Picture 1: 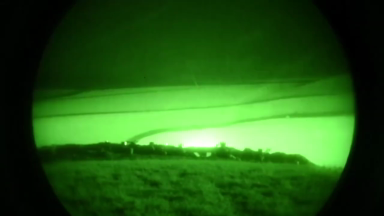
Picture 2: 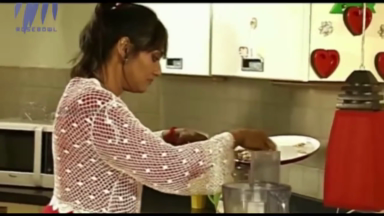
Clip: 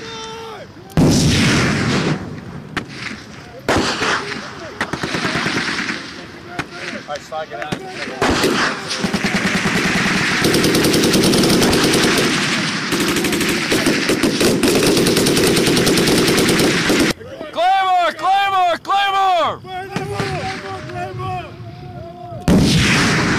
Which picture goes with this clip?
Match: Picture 1